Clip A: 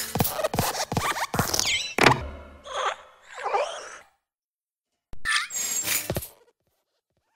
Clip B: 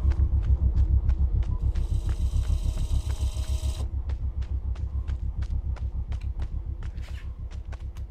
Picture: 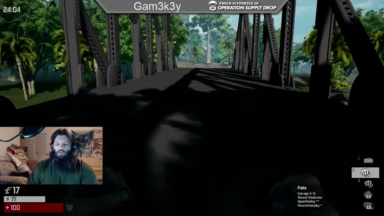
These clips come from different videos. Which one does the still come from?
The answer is B